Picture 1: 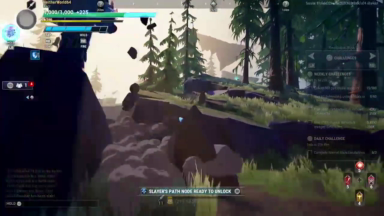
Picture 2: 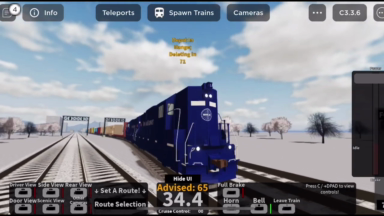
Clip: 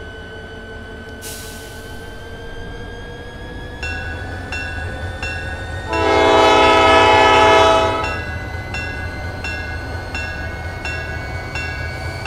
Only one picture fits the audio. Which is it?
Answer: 2